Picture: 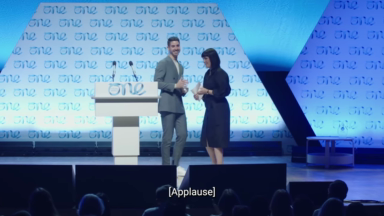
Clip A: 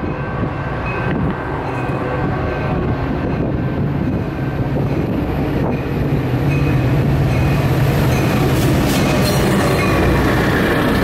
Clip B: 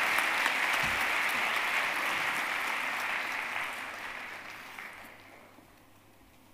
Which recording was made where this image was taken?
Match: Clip B